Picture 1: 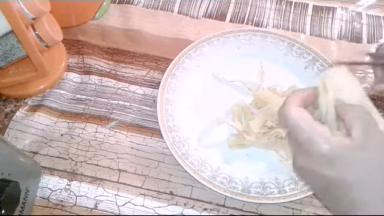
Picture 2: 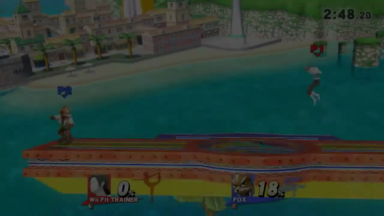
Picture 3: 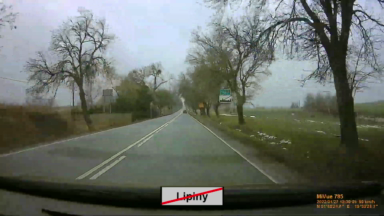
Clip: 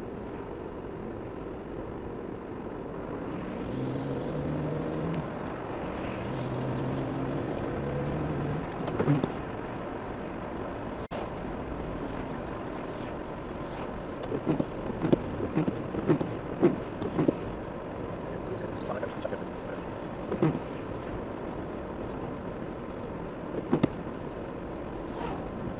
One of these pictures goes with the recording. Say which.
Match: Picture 3